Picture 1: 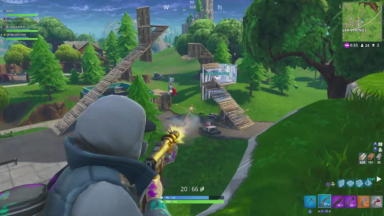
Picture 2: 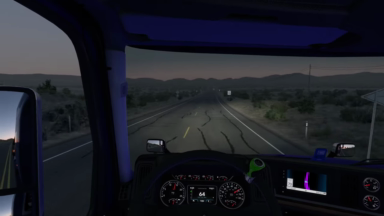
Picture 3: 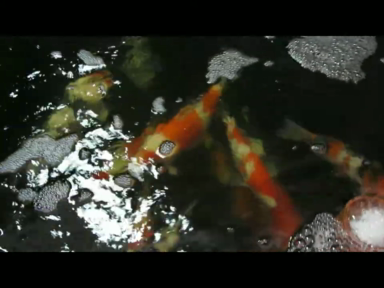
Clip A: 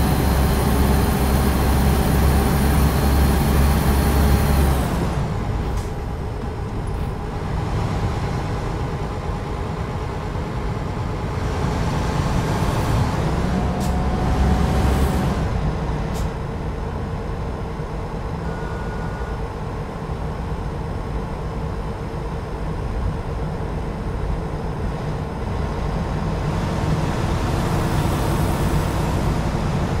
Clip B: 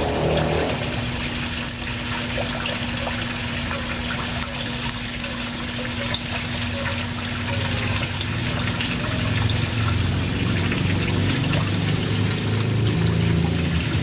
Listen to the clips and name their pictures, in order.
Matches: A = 2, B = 3